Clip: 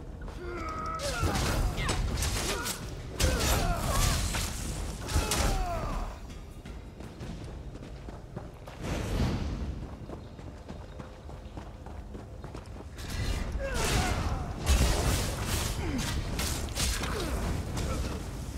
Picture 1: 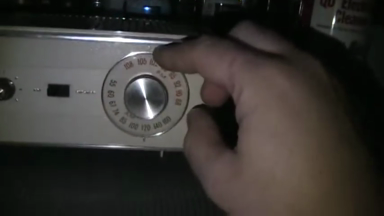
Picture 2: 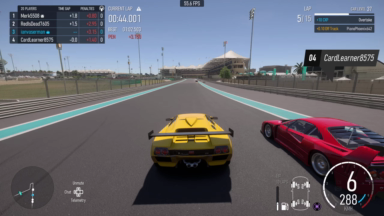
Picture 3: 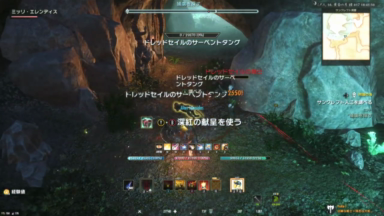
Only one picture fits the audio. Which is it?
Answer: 3